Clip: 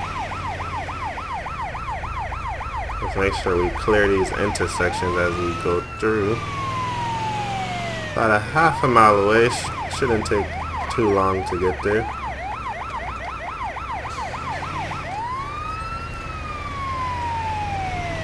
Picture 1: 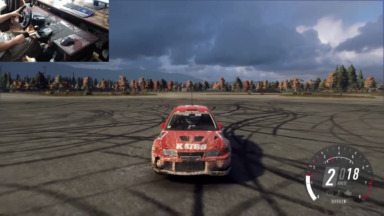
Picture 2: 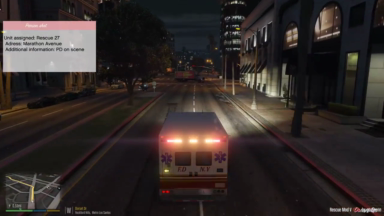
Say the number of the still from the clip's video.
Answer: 2